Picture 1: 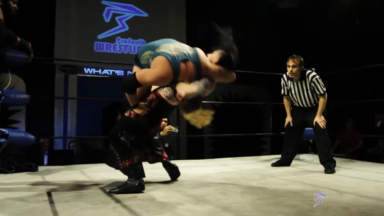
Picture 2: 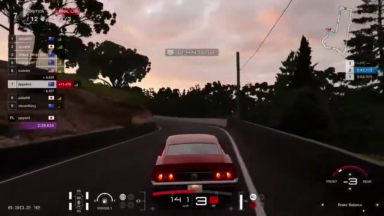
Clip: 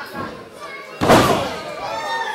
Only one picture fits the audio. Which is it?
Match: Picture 1